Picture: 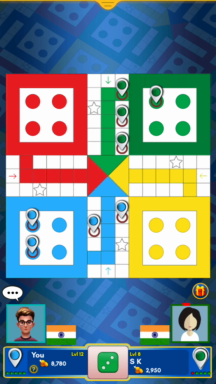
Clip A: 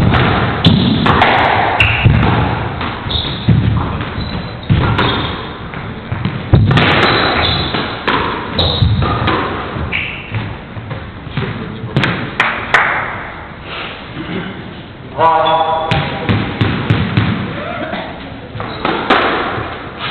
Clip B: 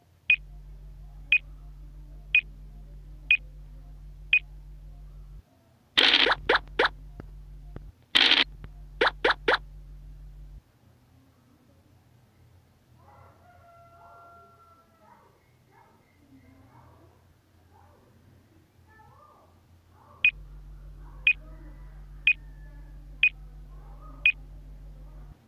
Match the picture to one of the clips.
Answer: B